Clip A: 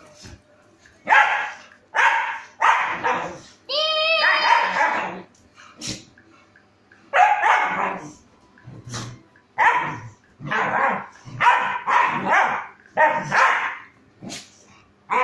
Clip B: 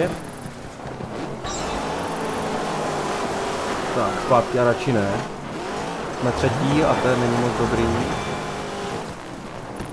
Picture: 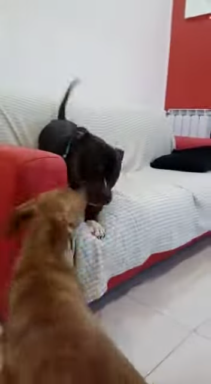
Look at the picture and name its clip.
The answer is A